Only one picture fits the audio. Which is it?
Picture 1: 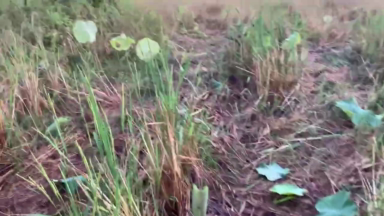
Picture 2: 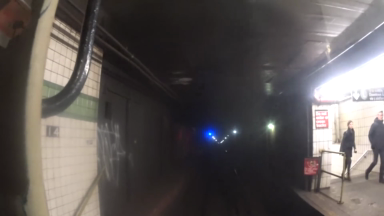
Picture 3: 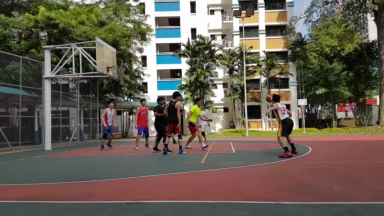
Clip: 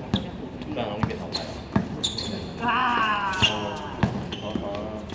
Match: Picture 3